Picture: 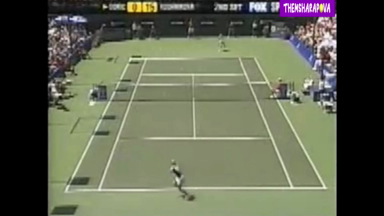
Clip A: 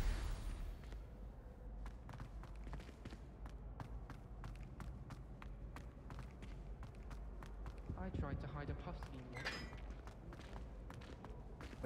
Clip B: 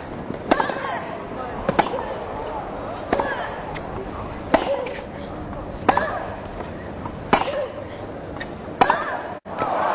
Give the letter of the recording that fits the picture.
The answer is B